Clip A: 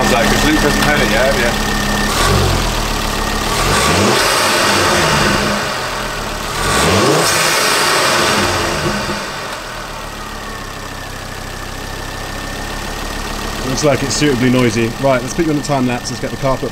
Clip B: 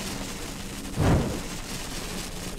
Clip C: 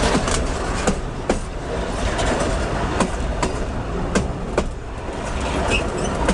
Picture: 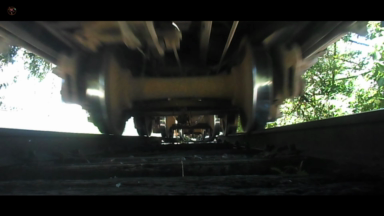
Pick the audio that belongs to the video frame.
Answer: C